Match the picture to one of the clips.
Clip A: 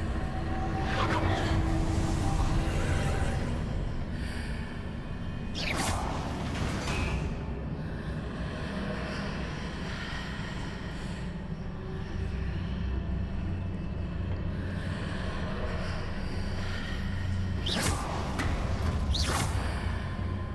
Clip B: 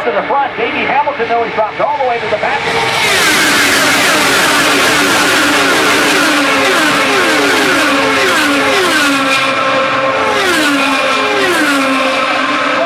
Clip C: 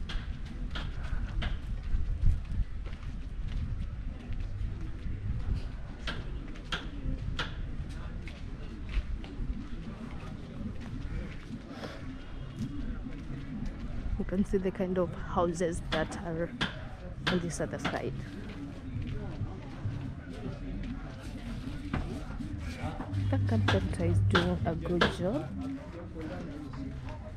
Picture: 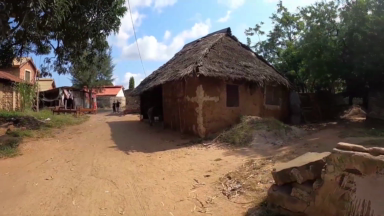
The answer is C